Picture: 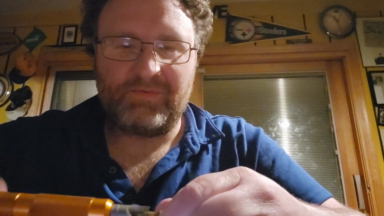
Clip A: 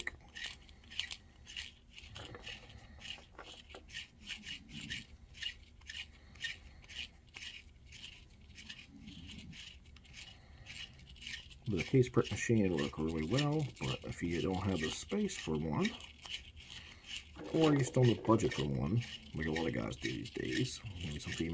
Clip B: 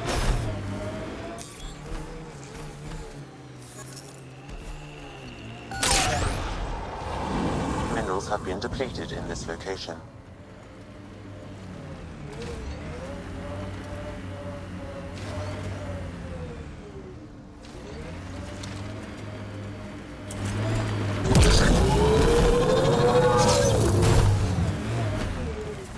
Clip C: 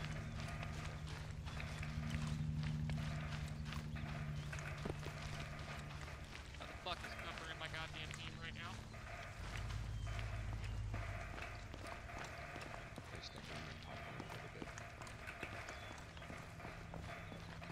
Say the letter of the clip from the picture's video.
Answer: A